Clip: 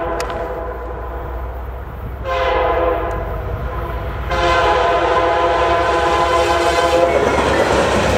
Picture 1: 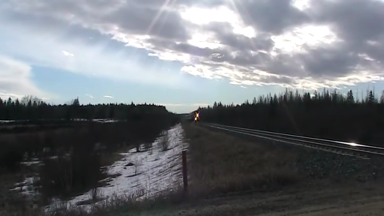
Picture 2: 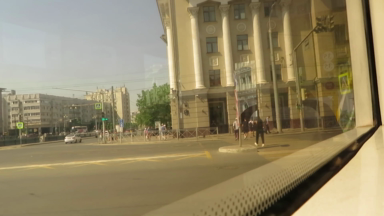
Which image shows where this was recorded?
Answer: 1